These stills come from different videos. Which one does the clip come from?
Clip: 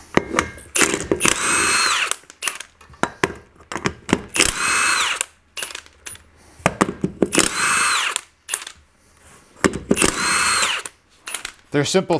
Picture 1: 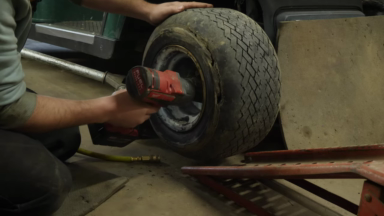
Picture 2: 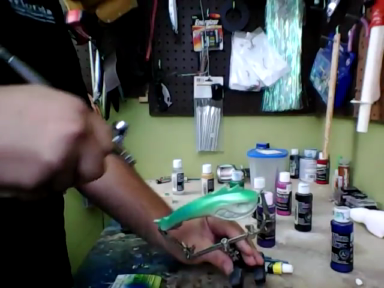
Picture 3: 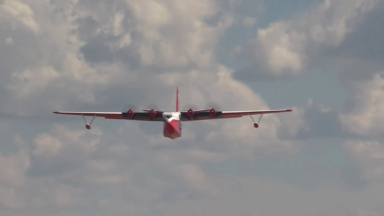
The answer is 1